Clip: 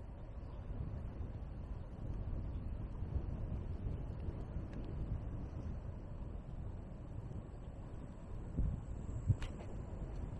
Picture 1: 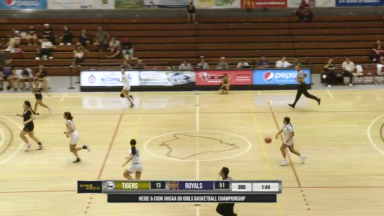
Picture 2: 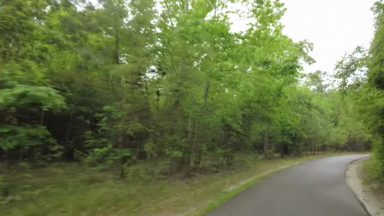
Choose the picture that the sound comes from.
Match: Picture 2